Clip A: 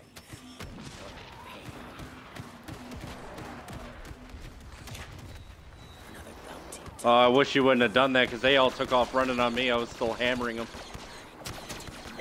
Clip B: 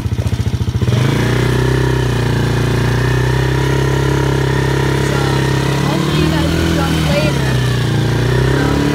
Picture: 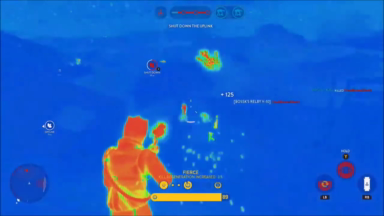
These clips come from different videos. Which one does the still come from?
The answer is A